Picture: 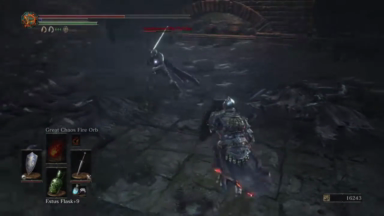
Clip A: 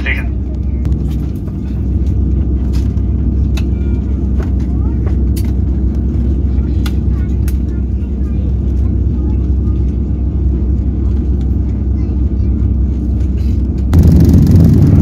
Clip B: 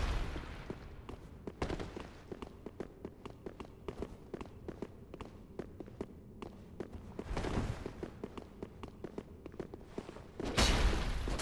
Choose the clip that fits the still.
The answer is B